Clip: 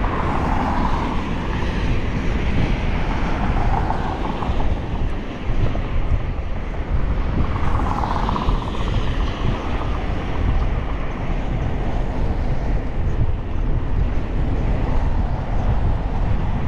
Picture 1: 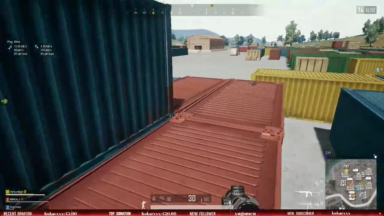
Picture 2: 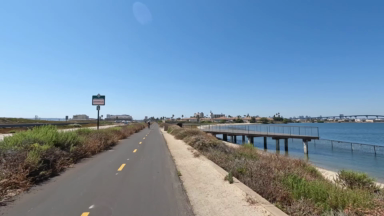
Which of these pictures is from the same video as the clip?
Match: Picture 2